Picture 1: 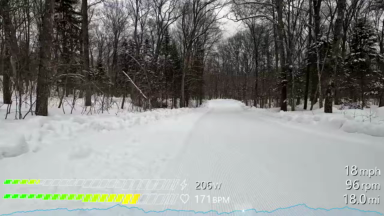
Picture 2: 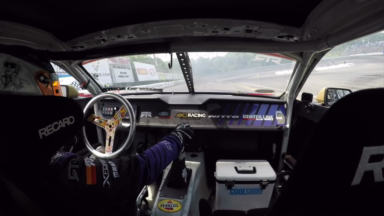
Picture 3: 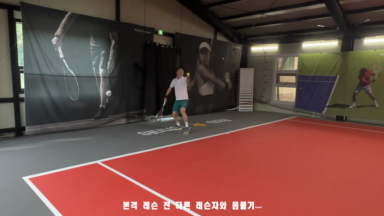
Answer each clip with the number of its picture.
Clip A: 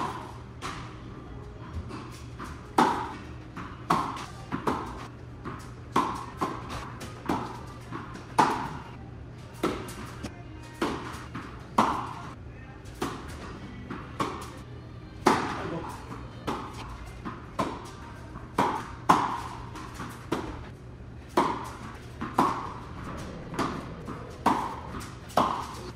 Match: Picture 3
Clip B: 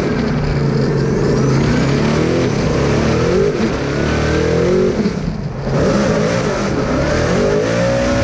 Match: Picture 2